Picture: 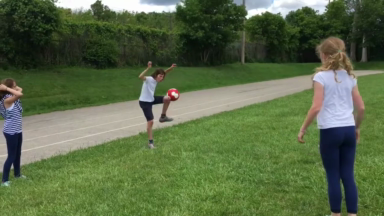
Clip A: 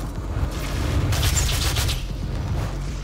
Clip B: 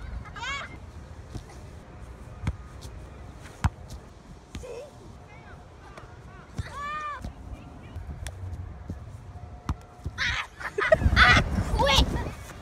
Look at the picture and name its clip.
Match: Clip B